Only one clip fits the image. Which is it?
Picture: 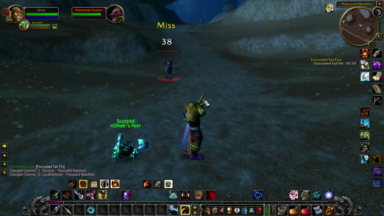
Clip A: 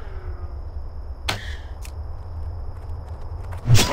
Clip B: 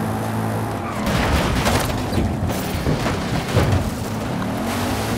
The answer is A